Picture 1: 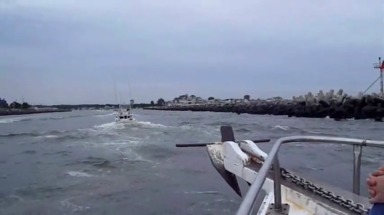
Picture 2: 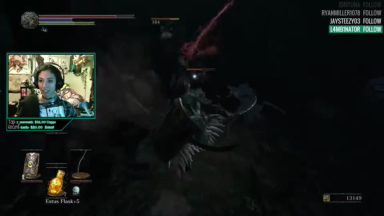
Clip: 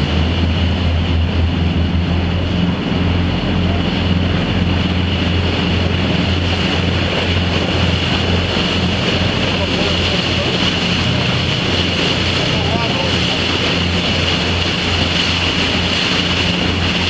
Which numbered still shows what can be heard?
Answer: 1